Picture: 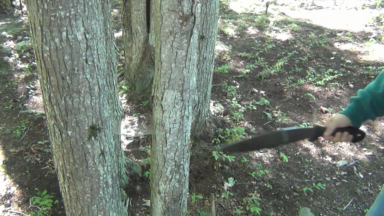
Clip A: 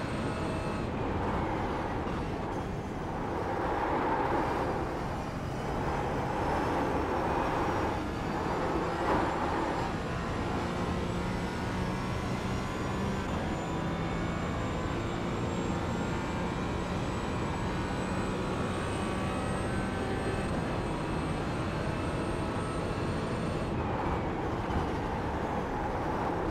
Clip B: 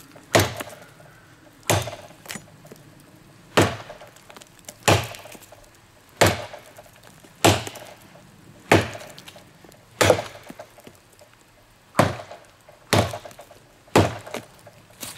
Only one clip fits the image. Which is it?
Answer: B